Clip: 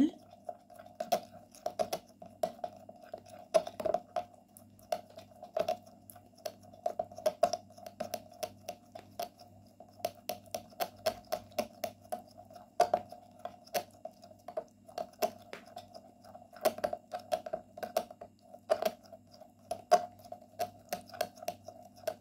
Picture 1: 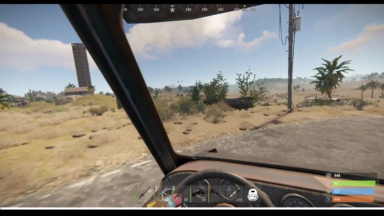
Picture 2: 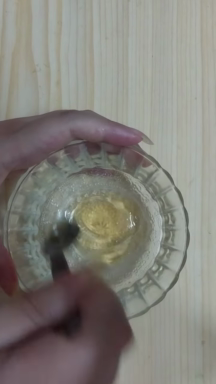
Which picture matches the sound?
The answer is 2